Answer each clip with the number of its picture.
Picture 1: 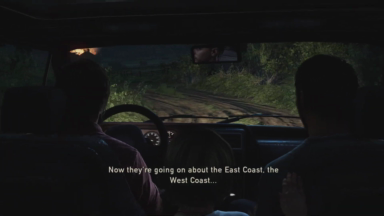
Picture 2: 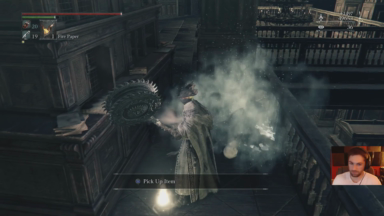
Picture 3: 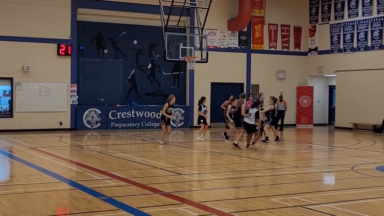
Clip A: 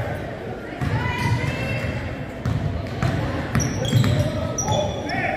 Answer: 3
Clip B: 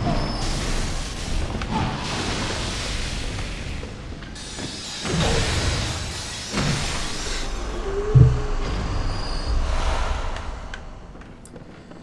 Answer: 2